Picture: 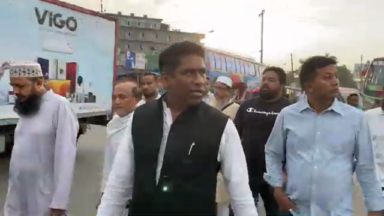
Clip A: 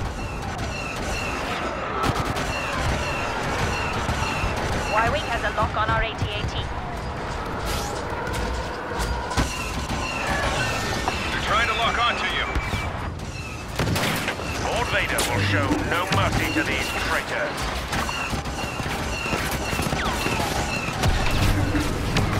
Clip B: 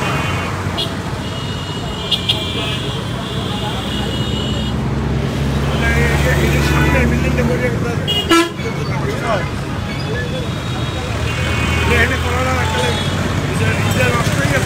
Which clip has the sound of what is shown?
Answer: B